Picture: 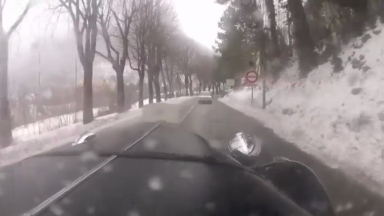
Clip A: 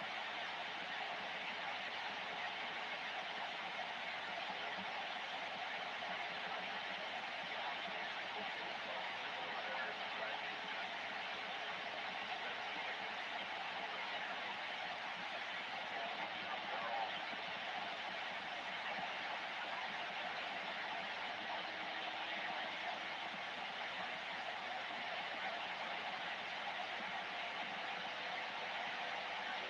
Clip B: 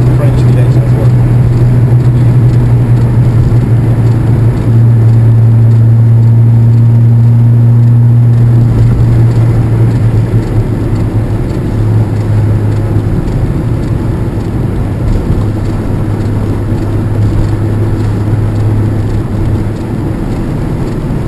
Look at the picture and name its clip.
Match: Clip B